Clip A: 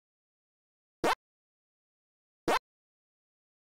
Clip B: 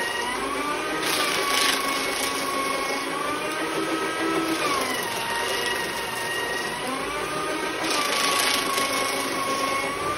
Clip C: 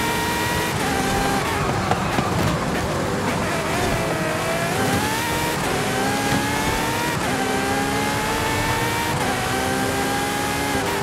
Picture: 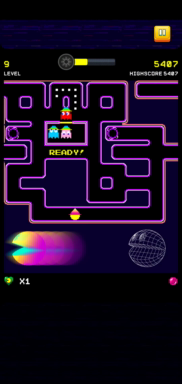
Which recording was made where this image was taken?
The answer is A